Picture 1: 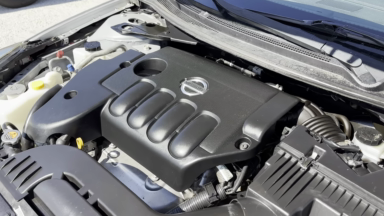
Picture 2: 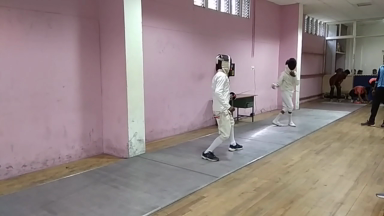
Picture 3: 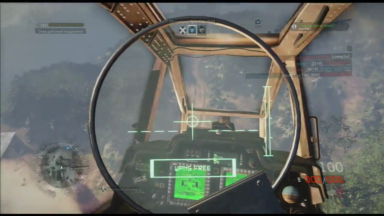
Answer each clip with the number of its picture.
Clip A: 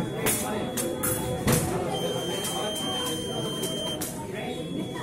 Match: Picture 2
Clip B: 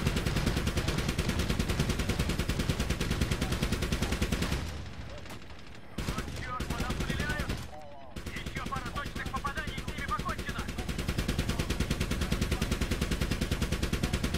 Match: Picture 3